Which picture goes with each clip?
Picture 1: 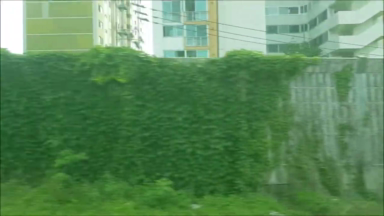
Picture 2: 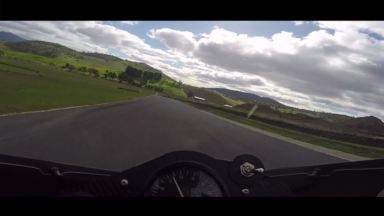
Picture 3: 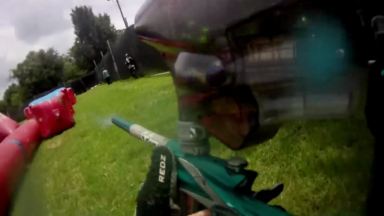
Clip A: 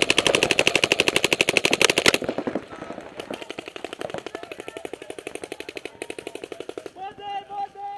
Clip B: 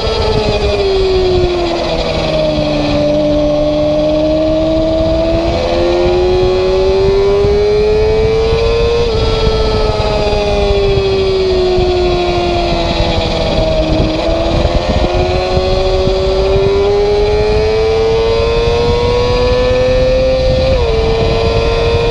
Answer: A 3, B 2